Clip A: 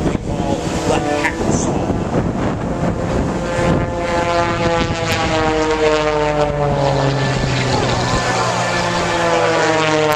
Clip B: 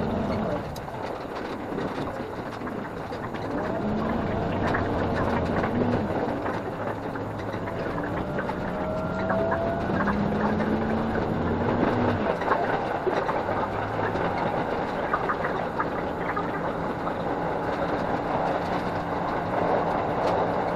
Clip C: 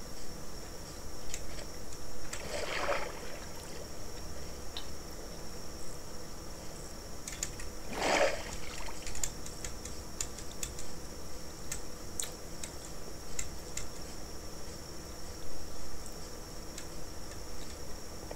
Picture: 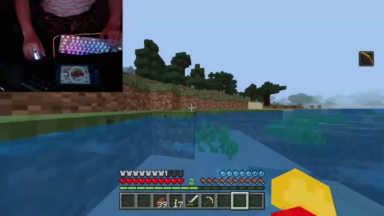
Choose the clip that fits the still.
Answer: C